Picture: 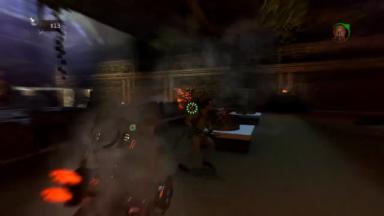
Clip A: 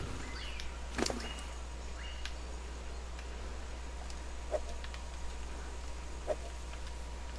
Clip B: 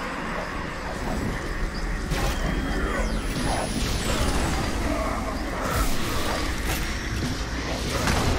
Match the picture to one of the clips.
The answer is B